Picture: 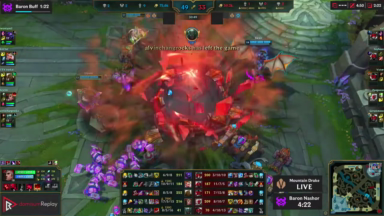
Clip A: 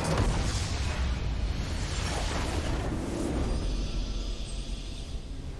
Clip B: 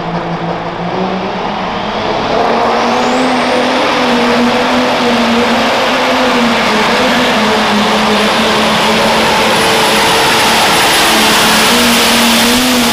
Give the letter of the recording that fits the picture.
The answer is A